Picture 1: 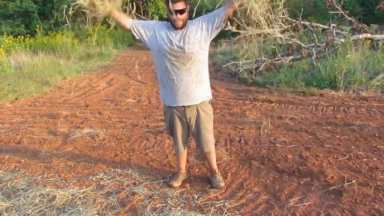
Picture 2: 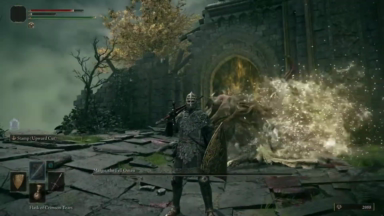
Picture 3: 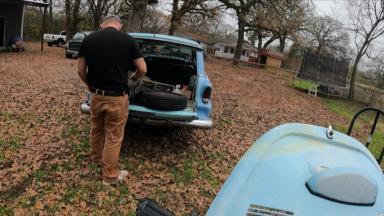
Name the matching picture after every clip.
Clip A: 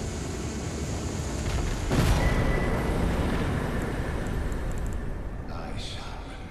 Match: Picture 2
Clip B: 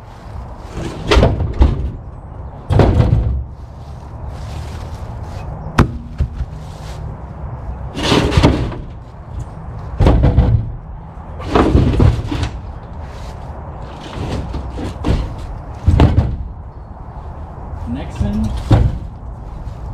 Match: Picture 3